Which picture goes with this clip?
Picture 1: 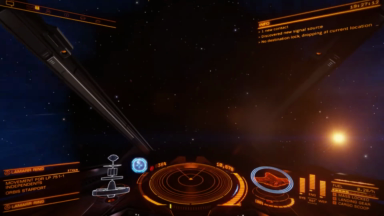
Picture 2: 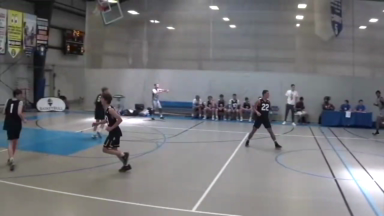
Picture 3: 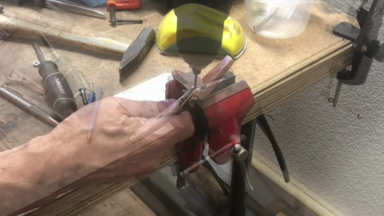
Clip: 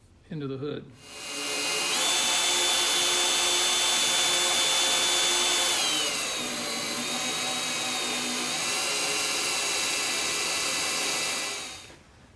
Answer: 3